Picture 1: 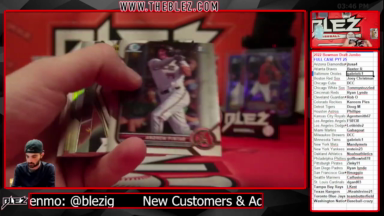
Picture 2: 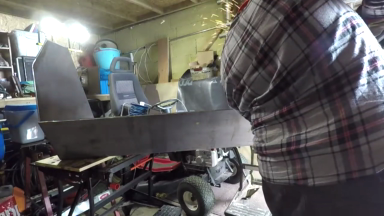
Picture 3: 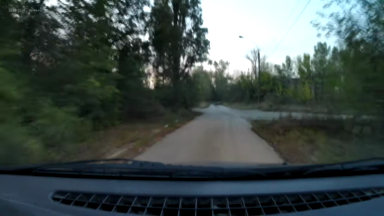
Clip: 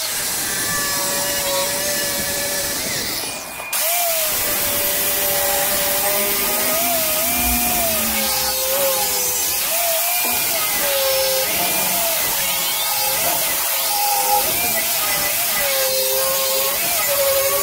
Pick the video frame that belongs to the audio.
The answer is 2